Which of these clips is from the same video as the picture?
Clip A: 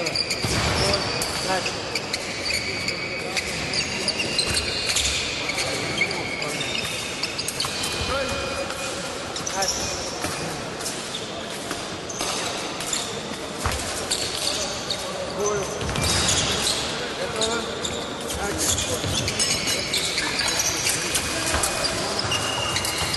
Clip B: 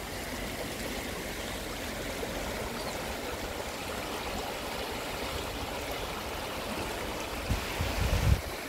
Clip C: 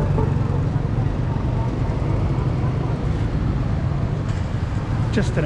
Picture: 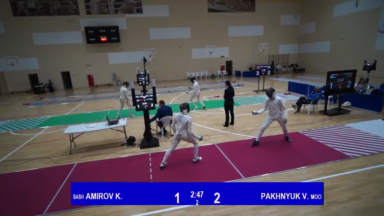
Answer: A